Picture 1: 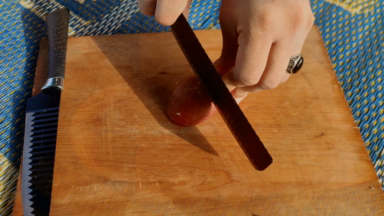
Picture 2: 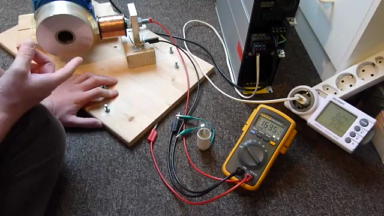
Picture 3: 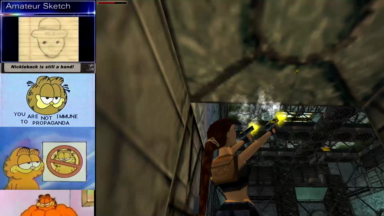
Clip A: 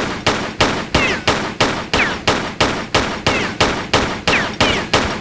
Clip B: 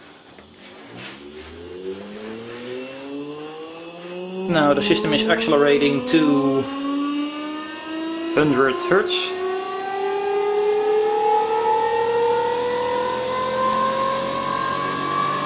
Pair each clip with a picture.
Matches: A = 3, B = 2